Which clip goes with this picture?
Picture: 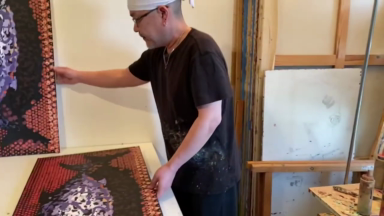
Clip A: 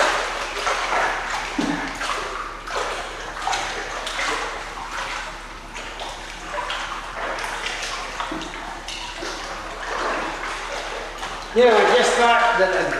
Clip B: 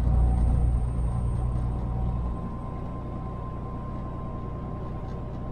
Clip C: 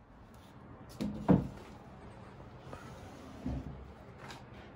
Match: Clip C